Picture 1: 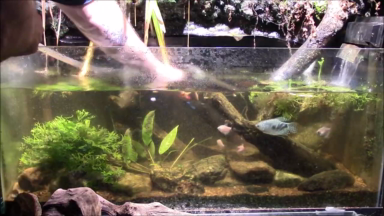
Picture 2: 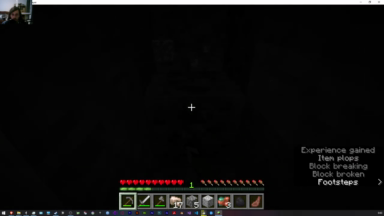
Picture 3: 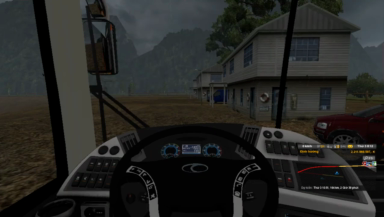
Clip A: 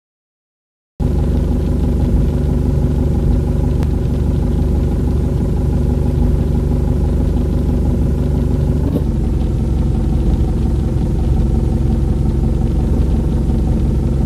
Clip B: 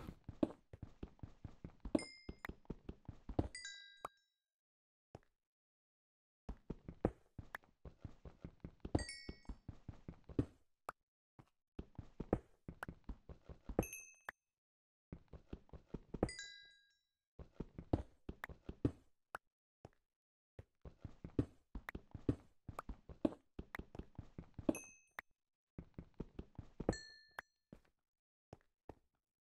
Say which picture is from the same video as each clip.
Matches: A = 3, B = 2